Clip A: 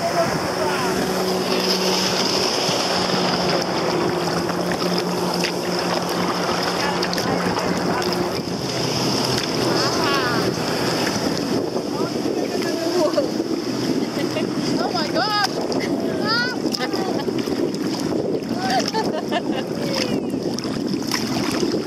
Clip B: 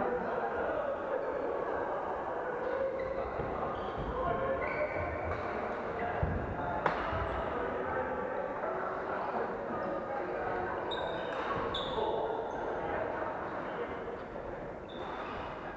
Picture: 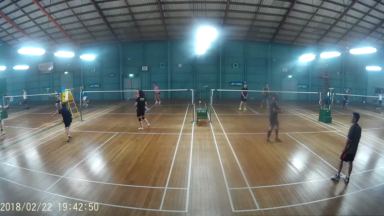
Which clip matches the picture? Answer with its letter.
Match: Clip B